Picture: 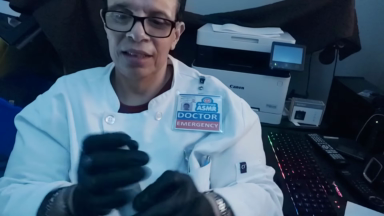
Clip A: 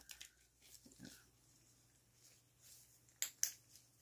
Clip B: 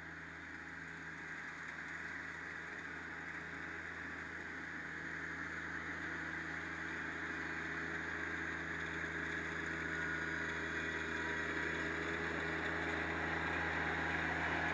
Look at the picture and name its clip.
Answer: A